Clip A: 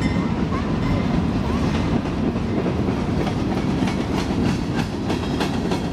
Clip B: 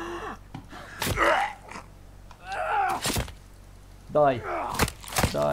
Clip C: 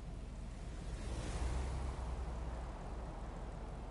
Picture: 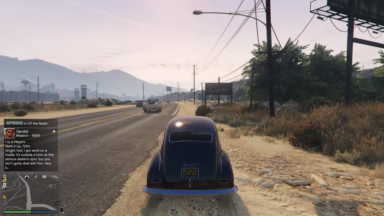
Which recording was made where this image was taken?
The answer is C